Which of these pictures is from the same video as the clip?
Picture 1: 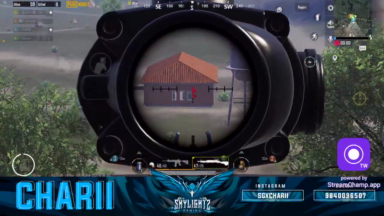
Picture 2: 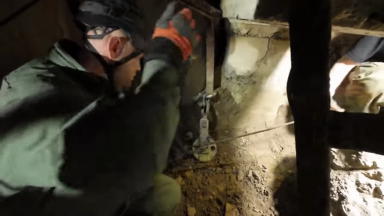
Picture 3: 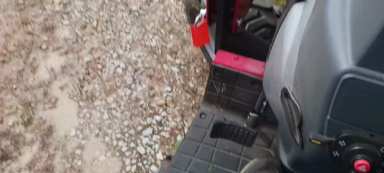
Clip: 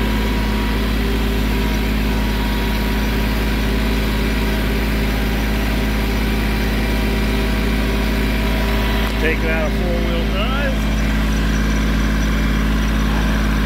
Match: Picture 3